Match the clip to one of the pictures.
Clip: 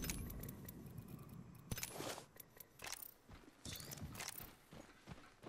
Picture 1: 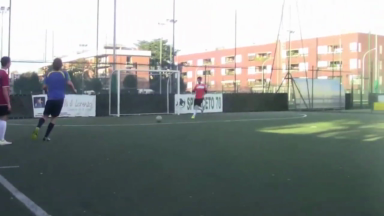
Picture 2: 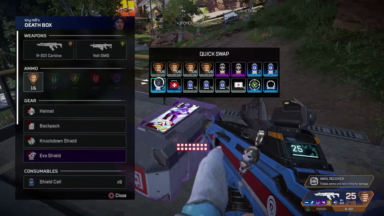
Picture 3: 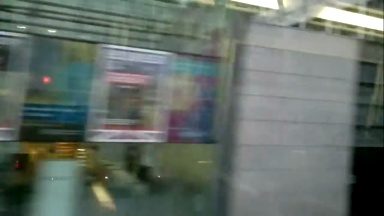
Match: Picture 2